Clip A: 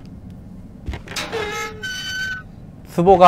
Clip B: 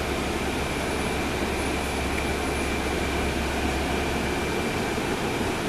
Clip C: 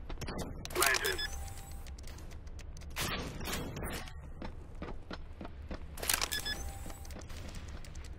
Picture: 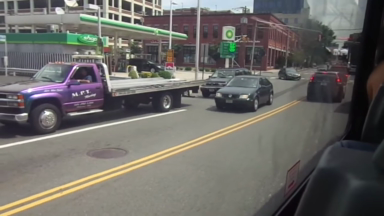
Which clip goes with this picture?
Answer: B